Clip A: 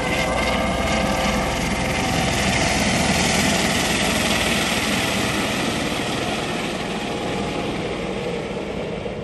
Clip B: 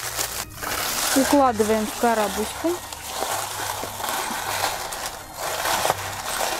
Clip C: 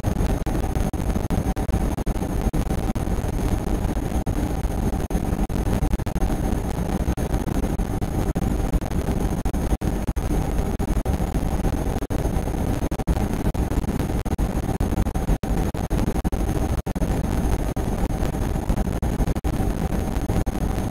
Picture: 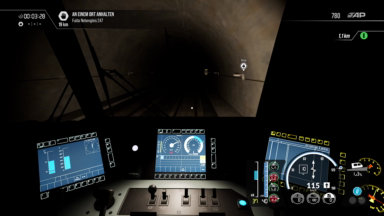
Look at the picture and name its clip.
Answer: C